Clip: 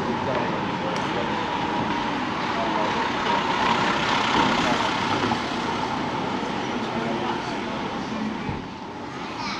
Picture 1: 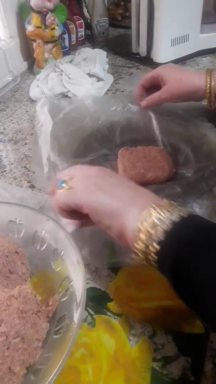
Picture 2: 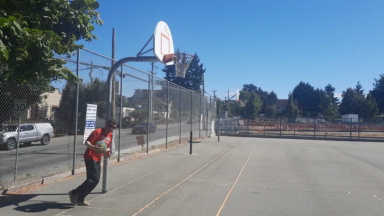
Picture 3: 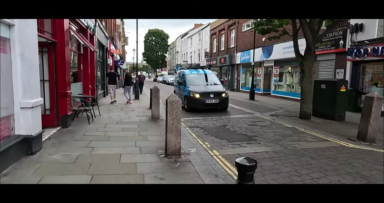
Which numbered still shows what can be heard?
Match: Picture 3